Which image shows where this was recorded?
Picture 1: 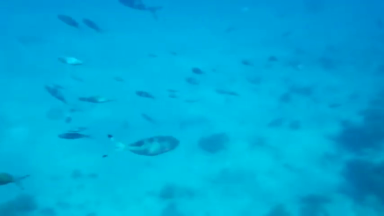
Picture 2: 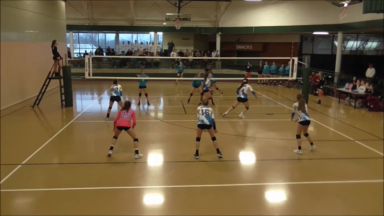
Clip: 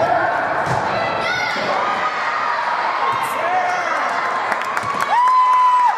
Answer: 2